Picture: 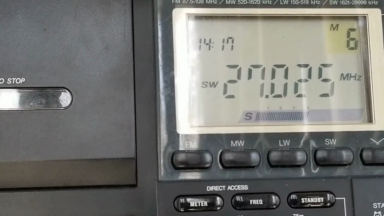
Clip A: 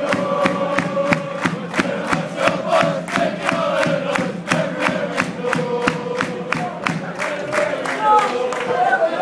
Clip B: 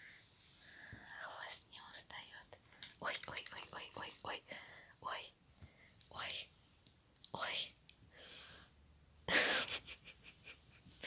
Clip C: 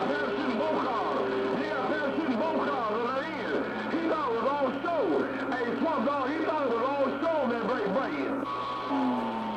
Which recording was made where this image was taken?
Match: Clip C